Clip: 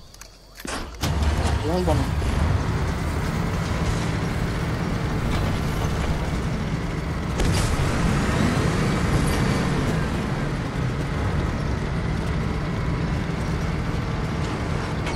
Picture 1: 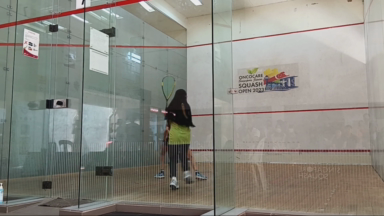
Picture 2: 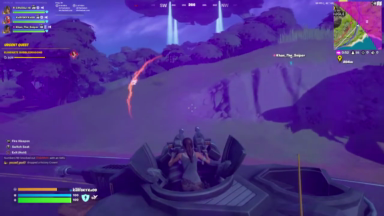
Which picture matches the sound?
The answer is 2